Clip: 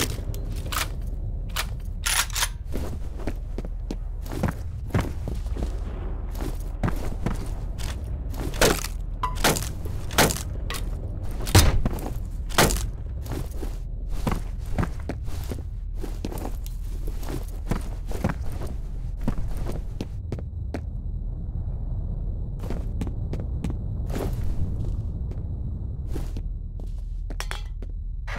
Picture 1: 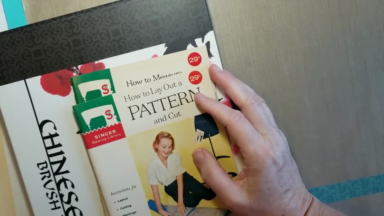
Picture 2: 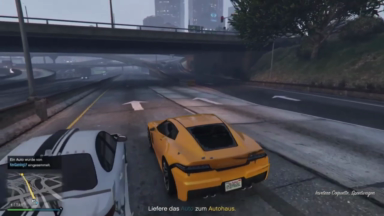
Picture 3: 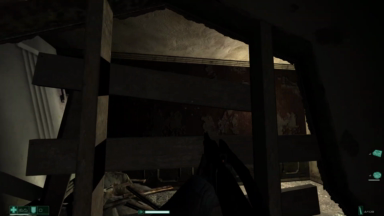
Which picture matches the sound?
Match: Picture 3